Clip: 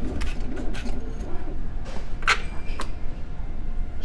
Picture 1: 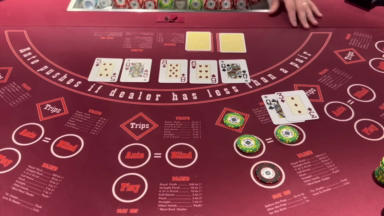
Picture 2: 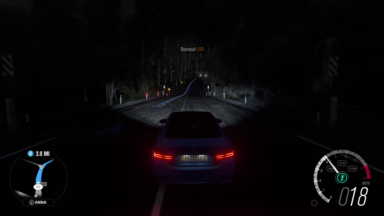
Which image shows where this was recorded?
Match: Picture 1